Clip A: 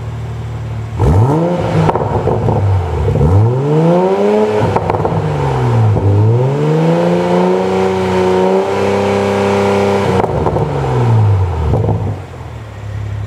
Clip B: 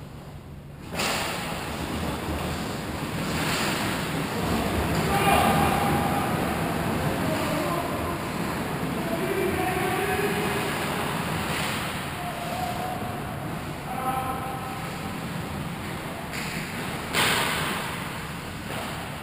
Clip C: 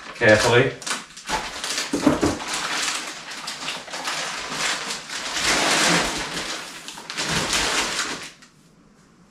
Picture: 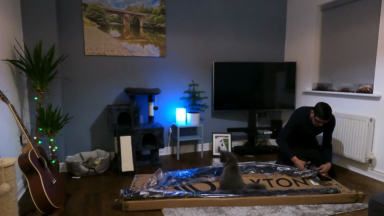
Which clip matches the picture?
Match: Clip C